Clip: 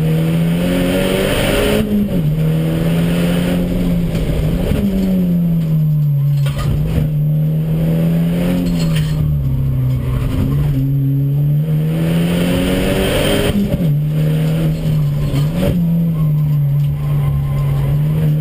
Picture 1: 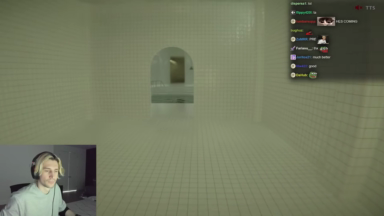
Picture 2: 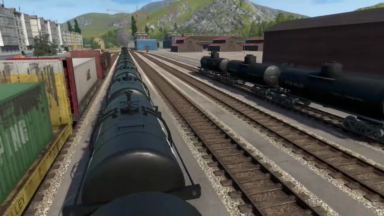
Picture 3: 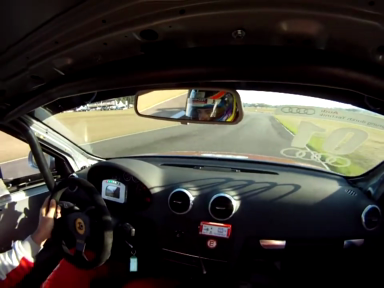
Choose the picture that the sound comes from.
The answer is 3